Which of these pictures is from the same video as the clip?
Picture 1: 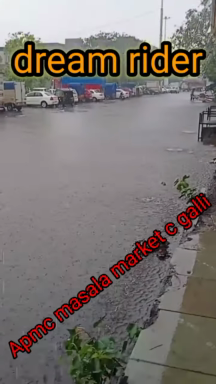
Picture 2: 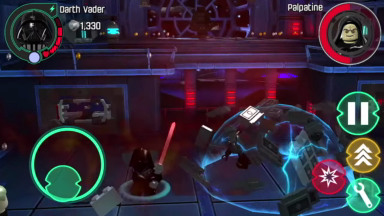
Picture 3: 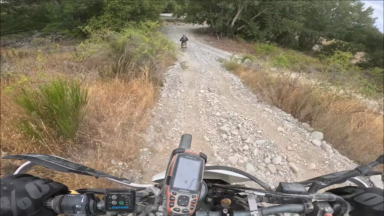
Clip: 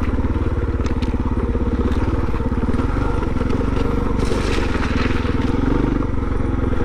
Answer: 3